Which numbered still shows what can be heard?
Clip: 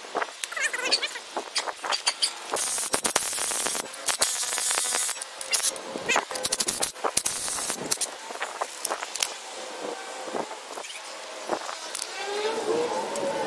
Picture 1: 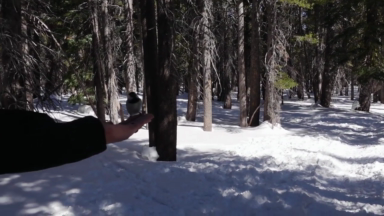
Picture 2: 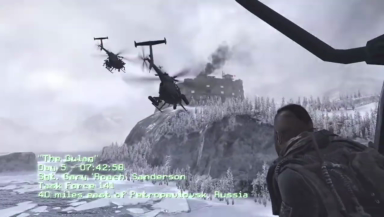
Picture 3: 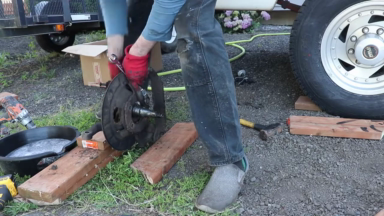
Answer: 3